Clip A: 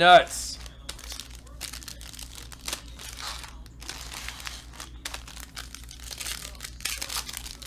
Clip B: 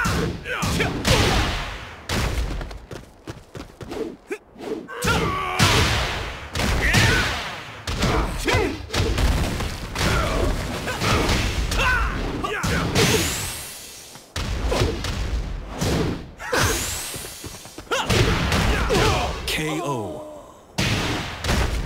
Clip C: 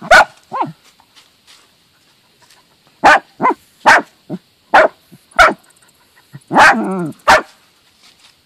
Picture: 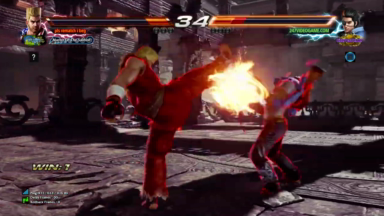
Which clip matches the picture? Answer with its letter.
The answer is B